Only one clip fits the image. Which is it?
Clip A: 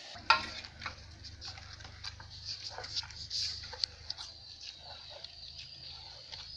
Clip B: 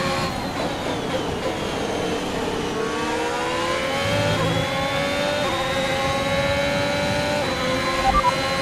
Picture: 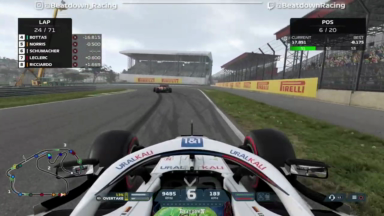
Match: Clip B